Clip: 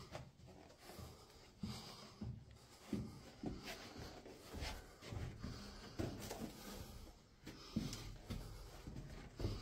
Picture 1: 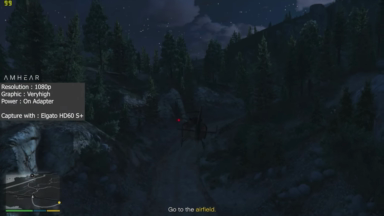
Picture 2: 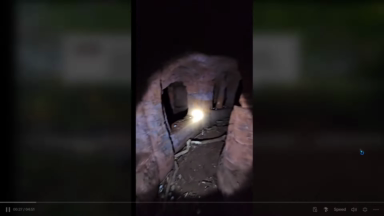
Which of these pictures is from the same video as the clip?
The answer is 2